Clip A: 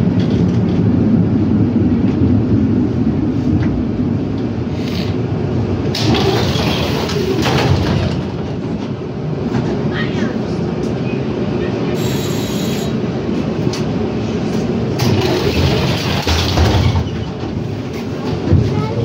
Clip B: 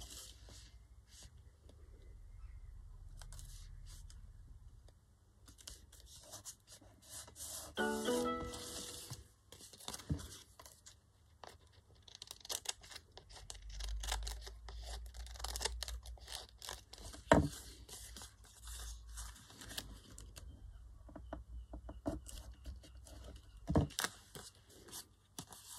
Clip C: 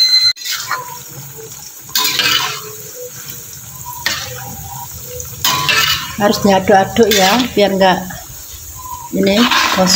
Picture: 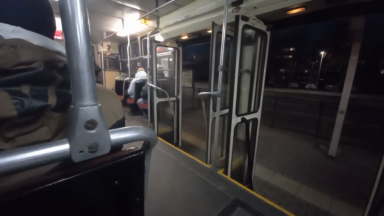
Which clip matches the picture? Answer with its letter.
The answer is A